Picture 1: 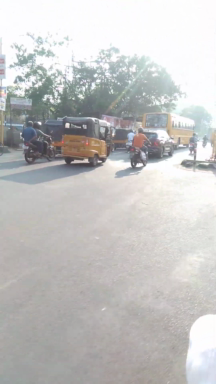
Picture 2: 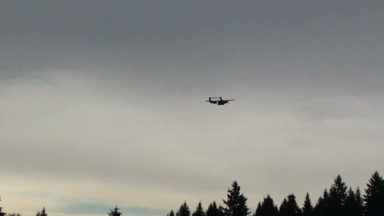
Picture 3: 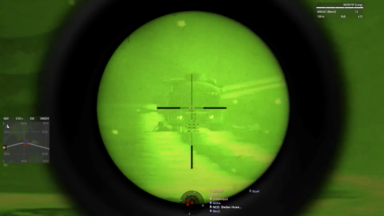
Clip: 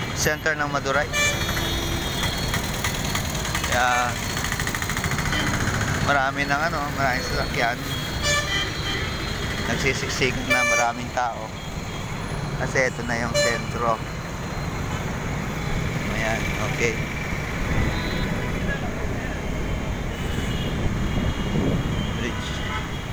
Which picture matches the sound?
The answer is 1